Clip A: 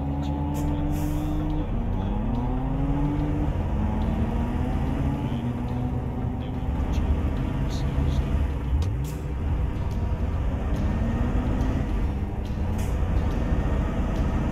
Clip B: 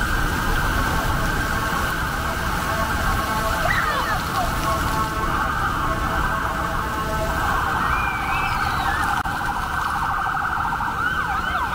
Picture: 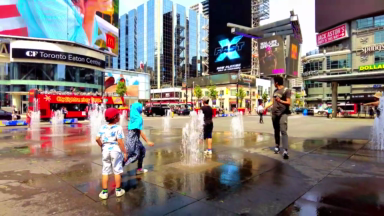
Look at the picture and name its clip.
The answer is B